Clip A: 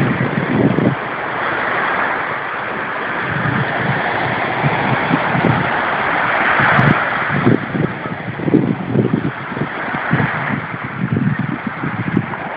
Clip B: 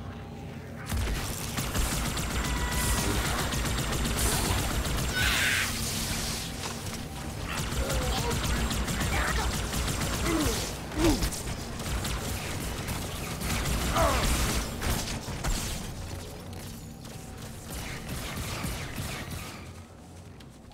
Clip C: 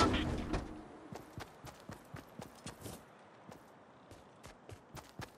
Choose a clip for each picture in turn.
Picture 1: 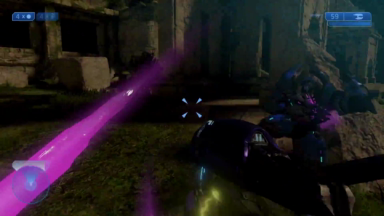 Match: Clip B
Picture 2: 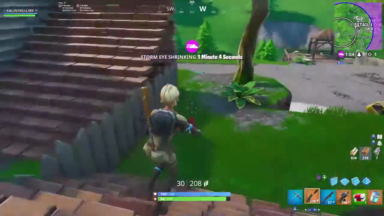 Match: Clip C